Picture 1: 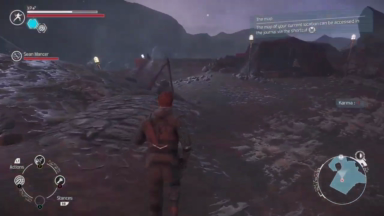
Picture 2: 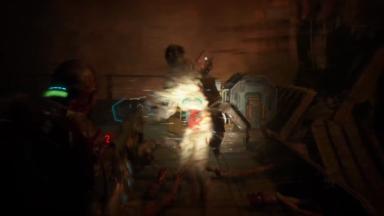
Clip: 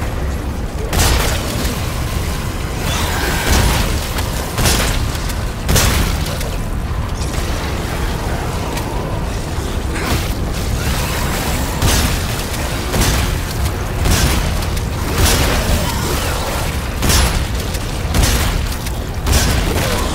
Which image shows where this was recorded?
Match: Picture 2